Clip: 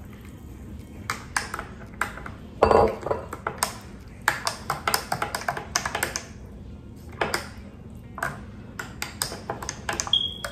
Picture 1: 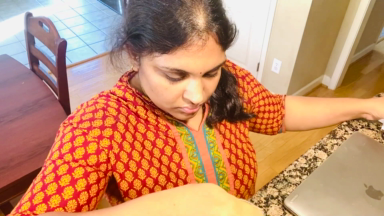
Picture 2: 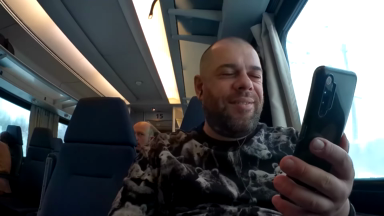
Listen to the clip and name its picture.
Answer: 1